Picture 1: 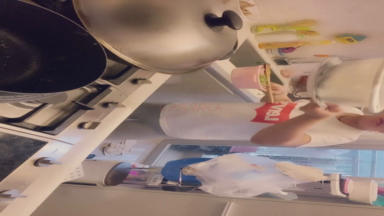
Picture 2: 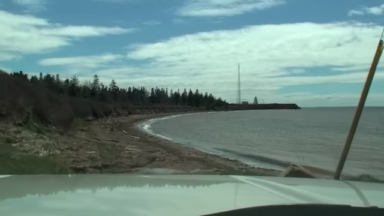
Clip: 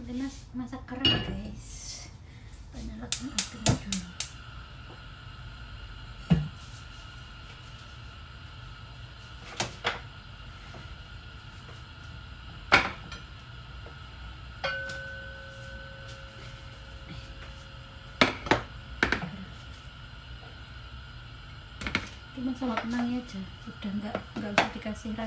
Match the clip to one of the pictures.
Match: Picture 1